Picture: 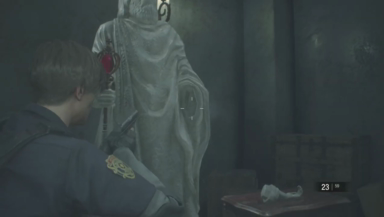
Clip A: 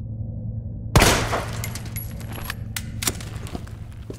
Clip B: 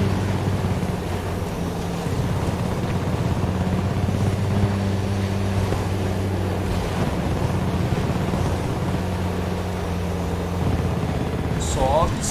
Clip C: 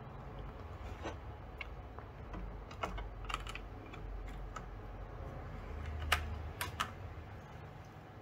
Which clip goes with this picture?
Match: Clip A